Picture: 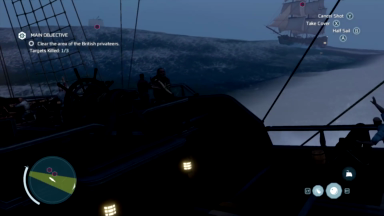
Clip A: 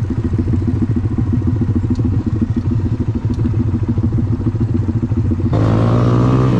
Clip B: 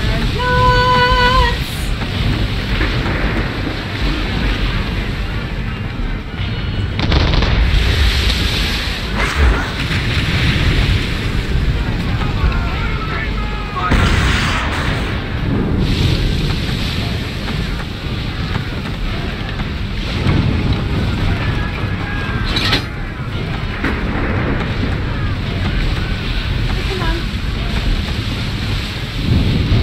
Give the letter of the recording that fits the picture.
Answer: B